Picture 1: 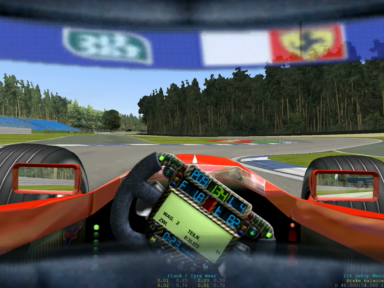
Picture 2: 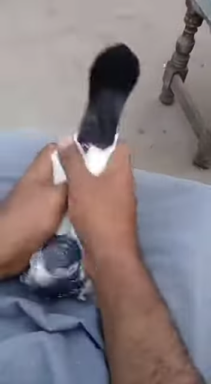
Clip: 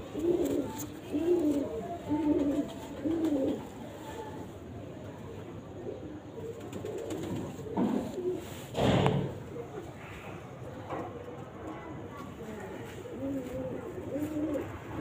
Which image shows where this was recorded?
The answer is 2